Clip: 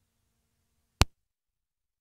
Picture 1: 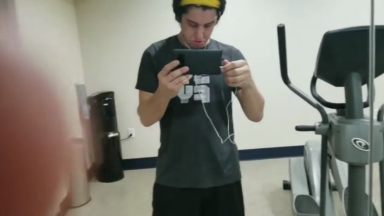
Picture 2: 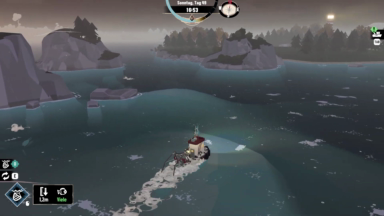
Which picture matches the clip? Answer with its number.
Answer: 1